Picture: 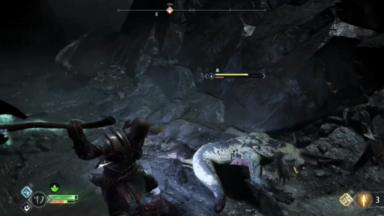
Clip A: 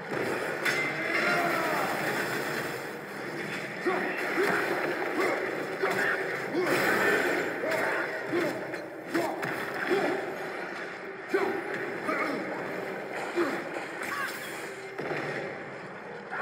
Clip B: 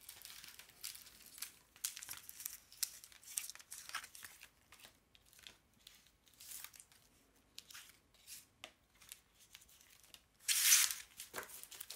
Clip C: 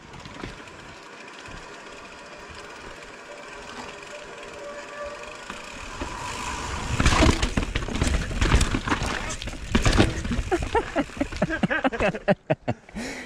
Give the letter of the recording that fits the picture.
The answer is A